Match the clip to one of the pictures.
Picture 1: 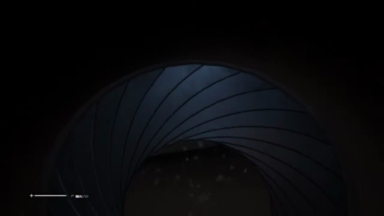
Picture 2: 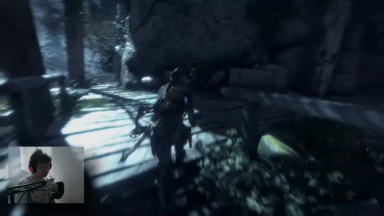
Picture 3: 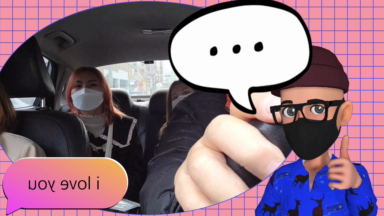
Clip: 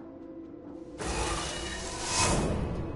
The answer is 1